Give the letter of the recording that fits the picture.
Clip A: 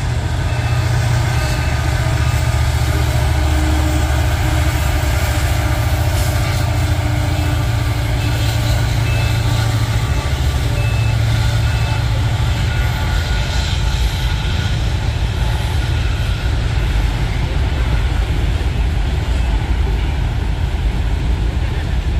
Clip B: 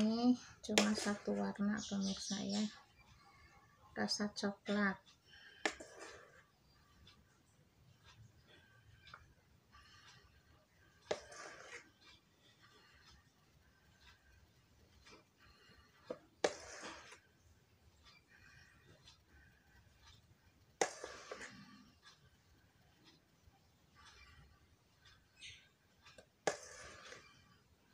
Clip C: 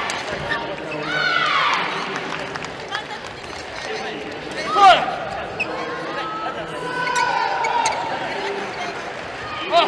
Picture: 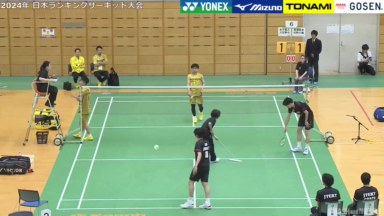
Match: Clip C